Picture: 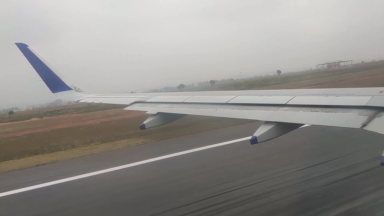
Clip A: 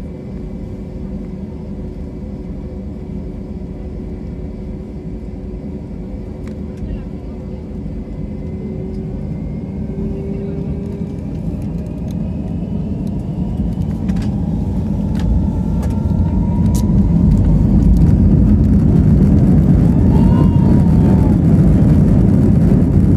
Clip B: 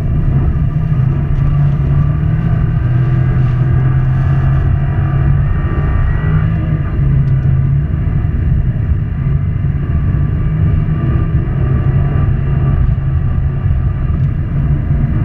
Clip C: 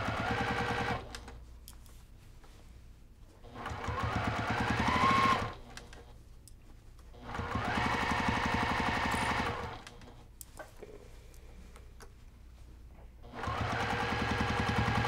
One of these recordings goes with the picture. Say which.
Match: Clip A